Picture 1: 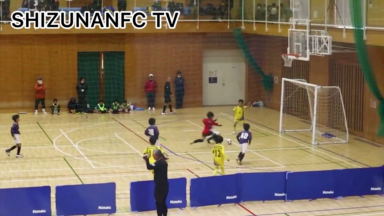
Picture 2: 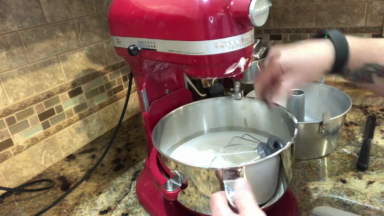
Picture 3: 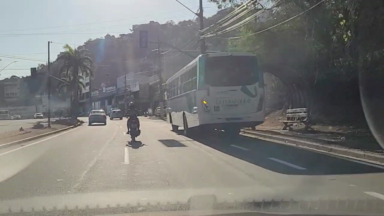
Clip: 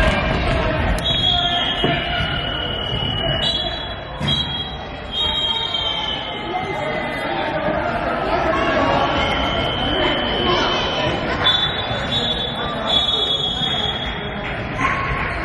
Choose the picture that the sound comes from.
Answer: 1